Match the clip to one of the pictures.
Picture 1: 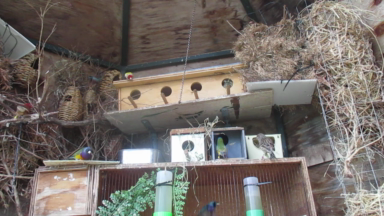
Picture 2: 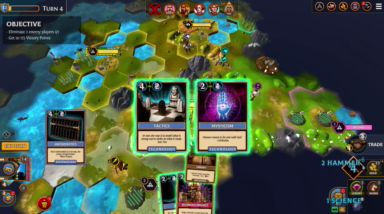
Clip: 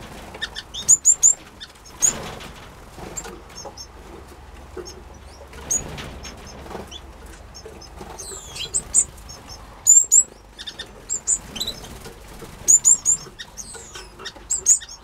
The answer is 1